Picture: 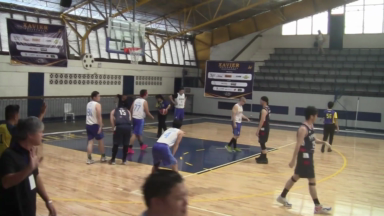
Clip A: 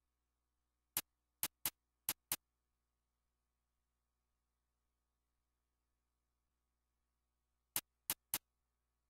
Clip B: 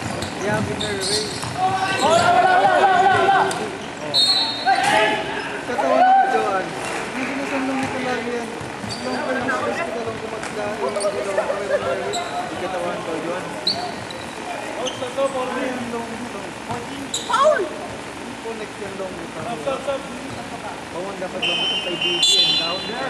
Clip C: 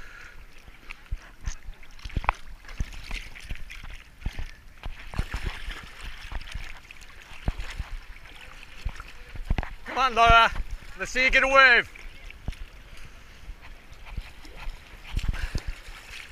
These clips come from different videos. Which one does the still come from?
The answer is B